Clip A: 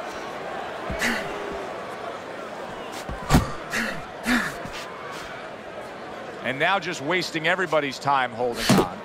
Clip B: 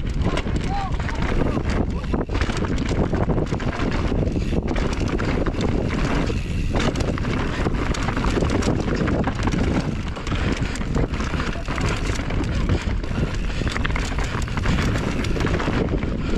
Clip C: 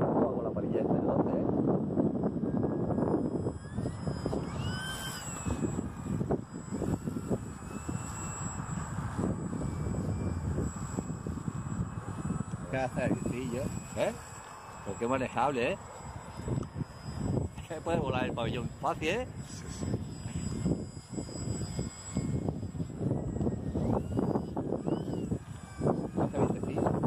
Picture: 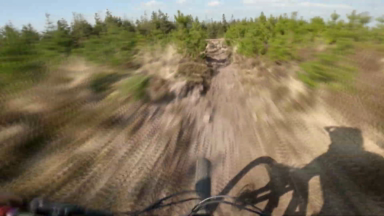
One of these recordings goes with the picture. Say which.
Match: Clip B